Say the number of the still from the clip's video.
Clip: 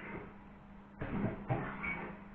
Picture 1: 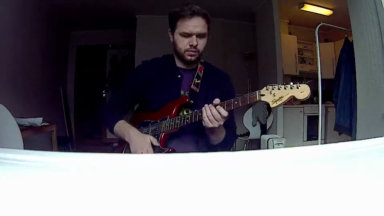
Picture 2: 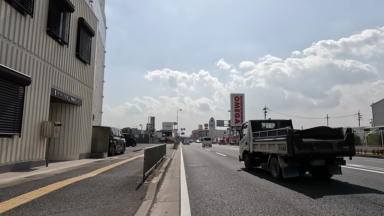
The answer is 1